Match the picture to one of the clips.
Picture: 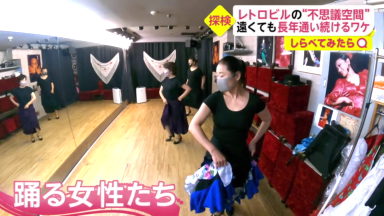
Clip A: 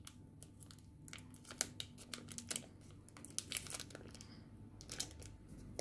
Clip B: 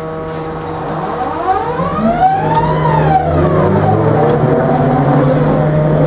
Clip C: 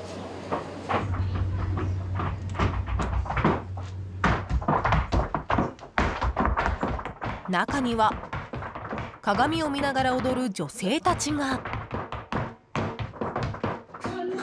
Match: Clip C